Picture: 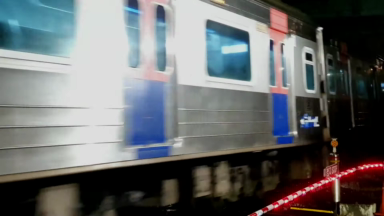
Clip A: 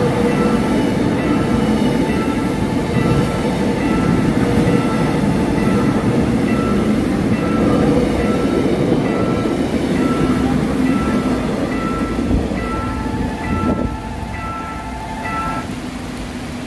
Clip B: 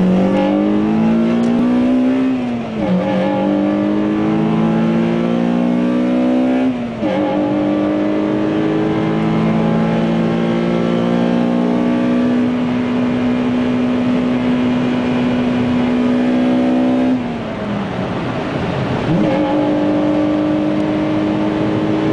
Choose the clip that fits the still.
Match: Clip A